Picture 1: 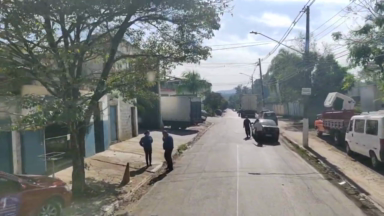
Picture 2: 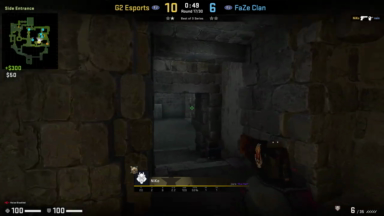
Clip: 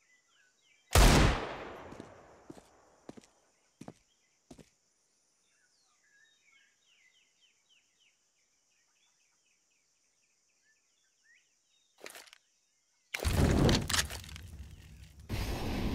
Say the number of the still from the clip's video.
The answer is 2